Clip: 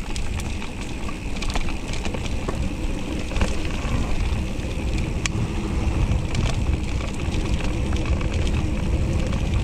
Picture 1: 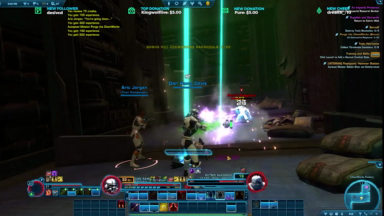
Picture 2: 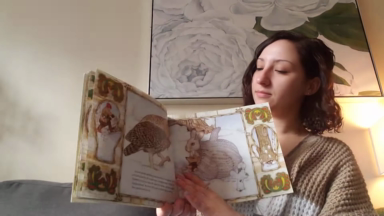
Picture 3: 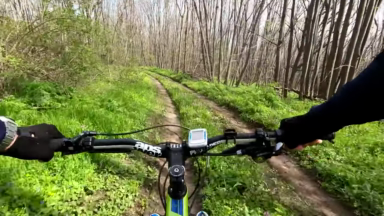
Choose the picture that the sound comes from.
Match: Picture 3